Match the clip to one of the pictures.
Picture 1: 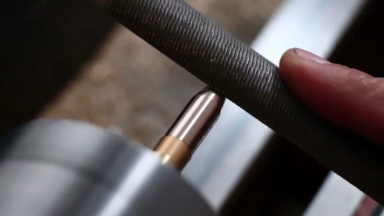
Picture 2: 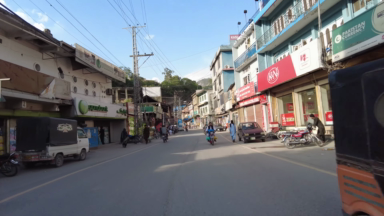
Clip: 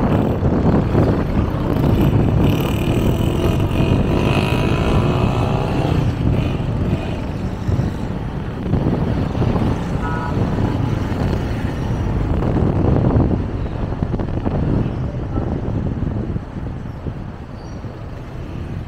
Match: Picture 2